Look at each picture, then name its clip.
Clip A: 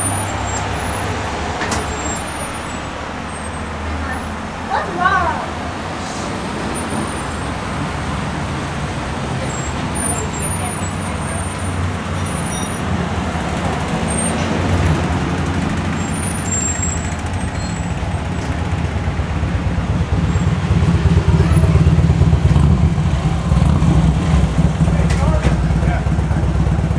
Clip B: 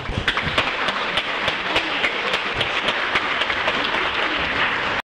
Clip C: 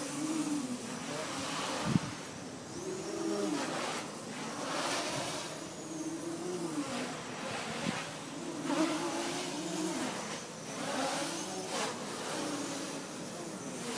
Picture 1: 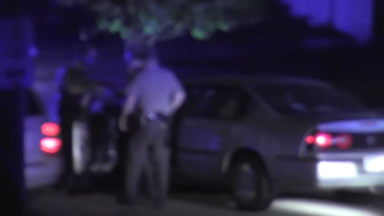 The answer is A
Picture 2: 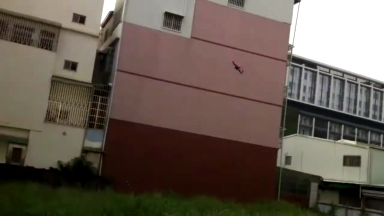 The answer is C